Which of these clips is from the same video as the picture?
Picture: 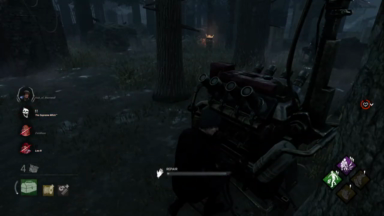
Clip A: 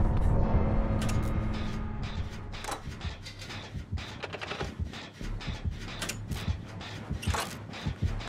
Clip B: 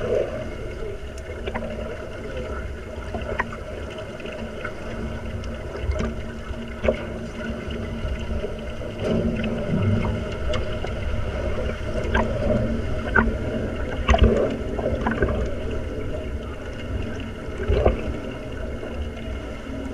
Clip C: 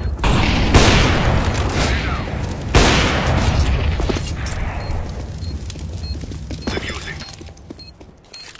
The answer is A